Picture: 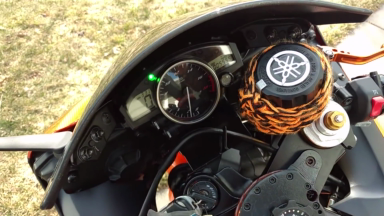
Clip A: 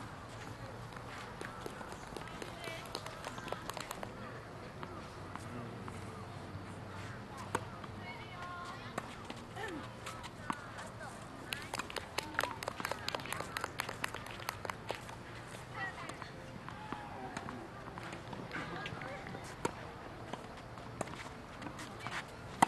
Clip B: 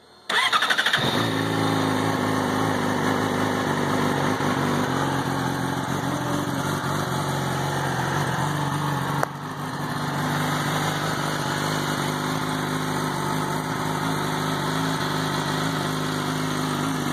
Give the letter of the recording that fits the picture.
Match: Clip B